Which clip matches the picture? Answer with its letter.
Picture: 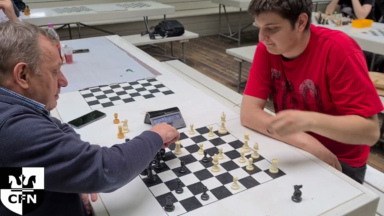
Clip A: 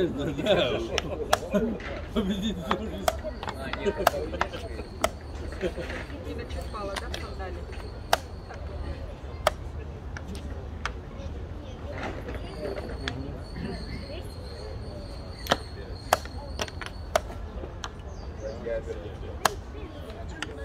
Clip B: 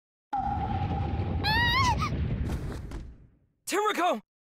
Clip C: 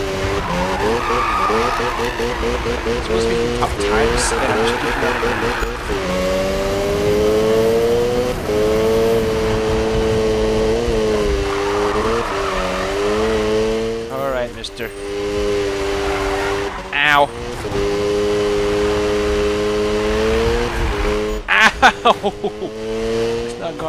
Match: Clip A